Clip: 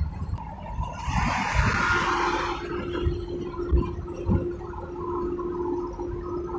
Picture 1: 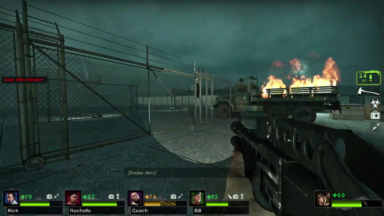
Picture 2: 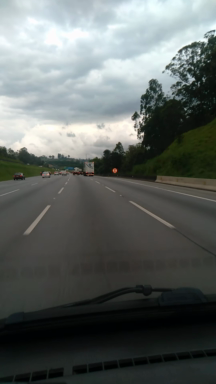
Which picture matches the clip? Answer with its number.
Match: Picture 2